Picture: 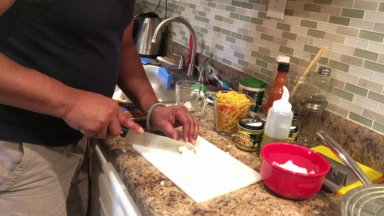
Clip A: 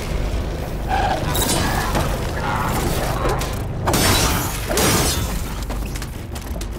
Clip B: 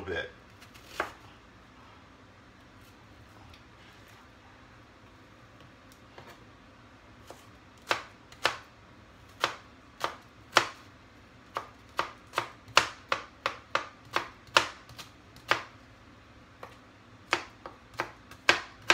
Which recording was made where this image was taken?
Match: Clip B